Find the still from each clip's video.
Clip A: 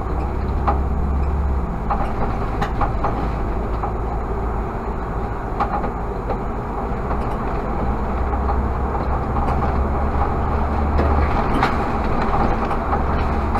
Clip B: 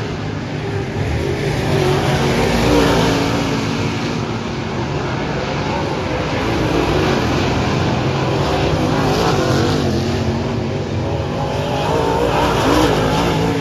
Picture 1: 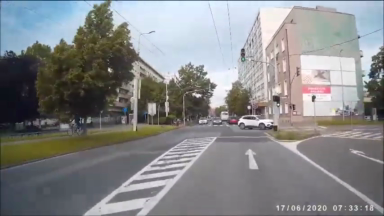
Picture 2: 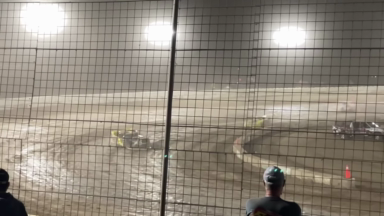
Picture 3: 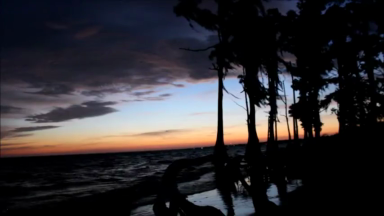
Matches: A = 1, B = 2